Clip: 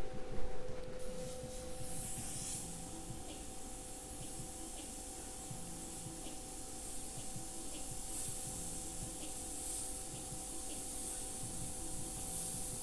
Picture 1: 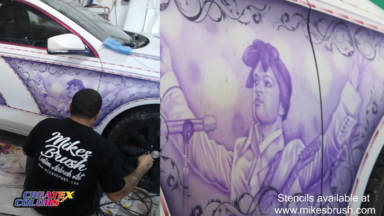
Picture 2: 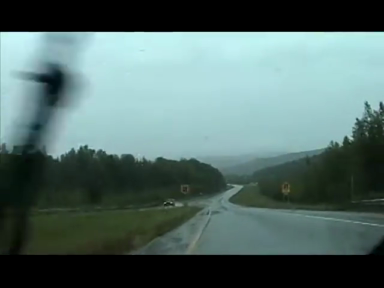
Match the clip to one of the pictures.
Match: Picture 1